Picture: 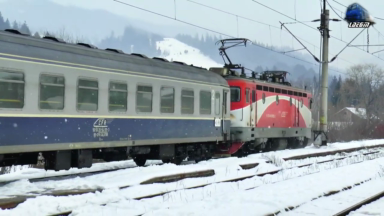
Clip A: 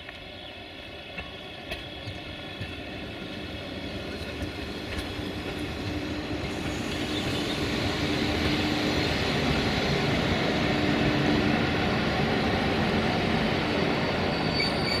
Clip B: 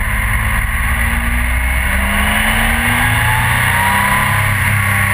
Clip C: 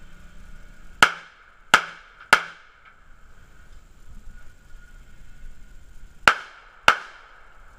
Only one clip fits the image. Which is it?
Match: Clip A